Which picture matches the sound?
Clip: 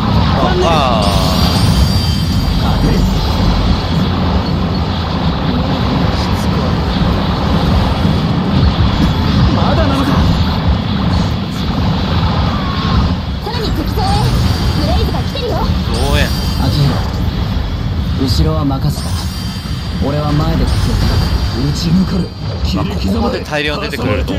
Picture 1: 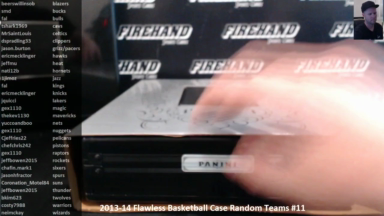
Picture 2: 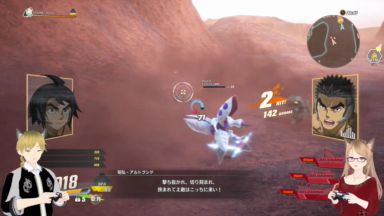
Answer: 2